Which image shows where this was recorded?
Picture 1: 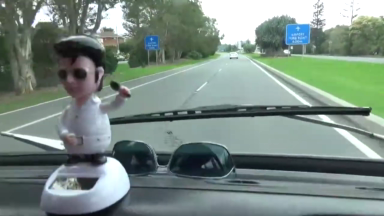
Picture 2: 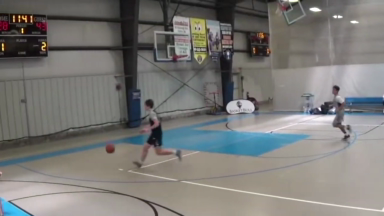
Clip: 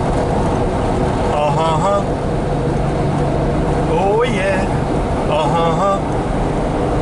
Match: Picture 1